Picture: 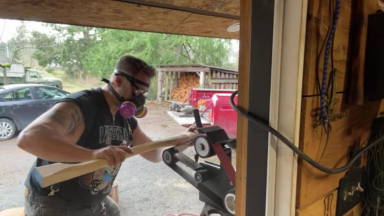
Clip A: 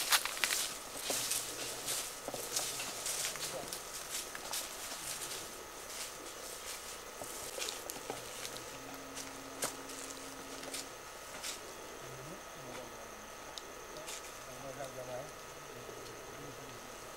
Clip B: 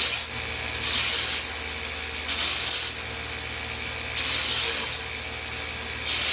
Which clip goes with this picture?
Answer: B